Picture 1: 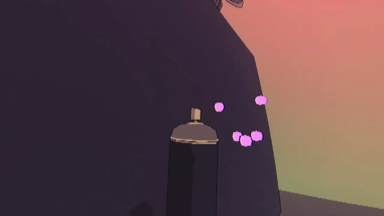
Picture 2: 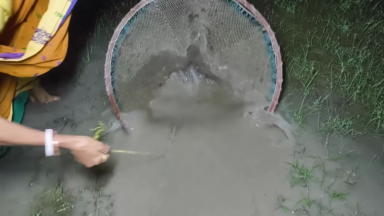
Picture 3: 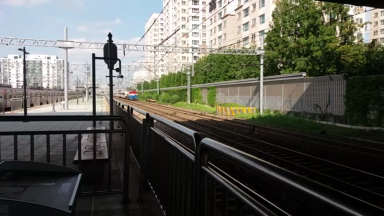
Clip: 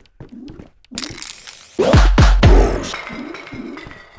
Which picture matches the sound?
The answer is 1